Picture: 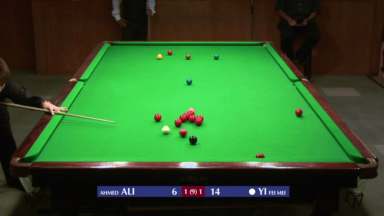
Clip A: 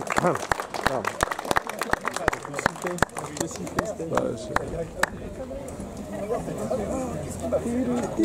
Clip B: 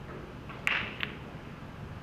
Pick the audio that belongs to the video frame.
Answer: B